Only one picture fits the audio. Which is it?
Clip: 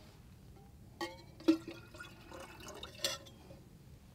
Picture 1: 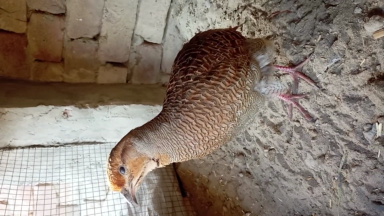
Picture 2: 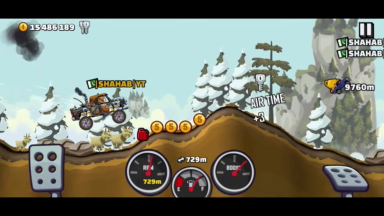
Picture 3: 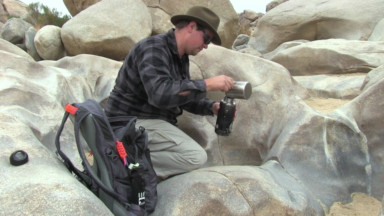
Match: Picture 3